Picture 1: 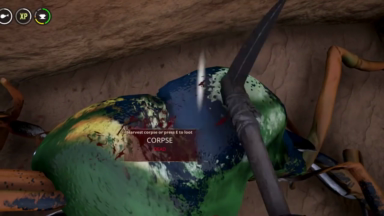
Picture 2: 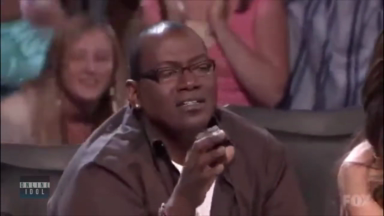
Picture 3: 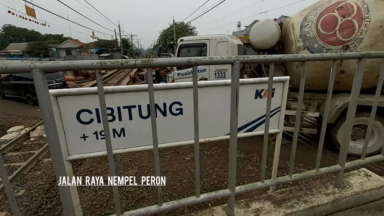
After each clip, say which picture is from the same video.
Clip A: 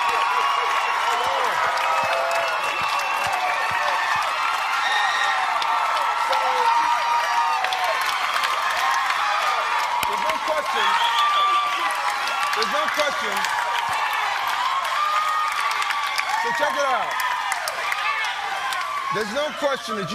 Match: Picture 2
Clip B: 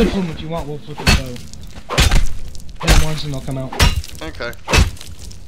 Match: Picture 1